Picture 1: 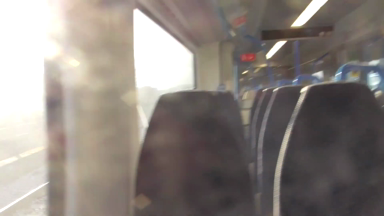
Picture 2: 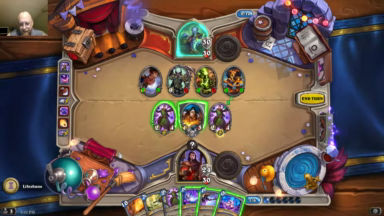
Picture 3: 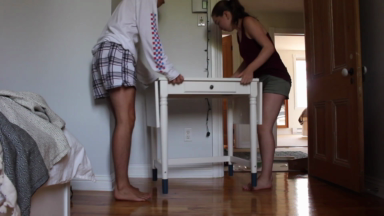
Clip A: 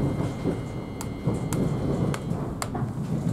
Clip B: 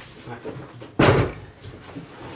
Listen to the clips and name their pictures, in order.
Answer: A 1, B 3